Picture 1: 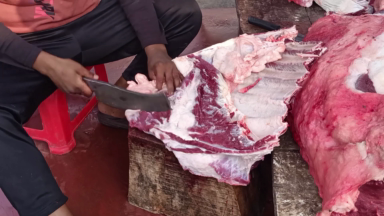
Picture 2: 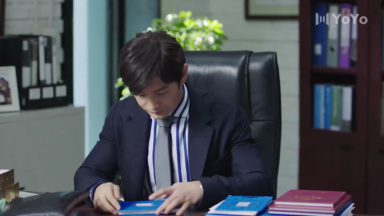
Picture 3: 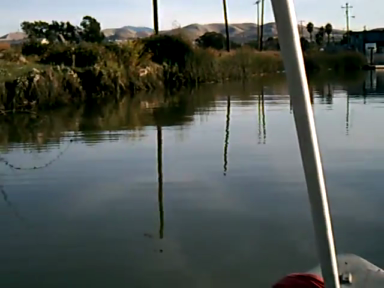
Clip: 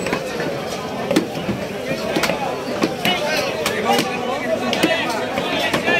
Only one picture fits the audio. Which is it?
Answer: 1